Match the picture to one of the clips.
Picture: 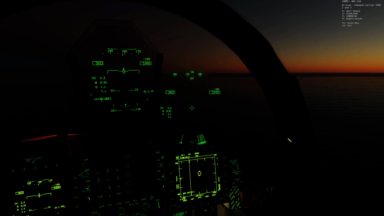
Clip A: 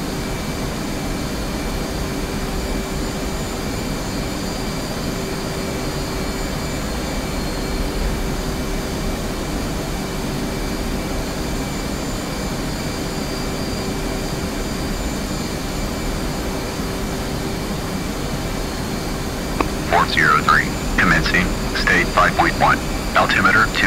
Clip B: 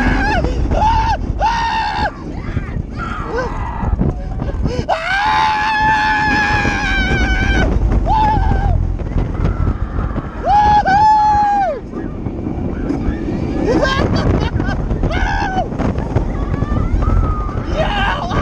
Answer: A